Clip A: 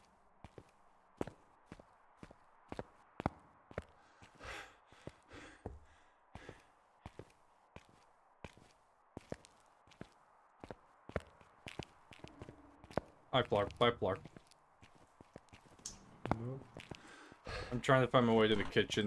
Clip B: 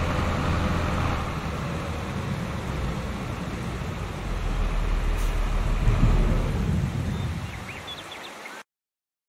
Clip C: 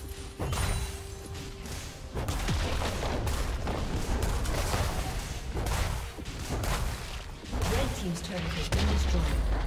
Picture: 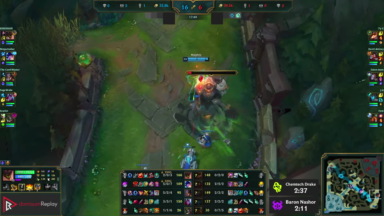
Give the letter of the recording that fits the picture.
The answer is C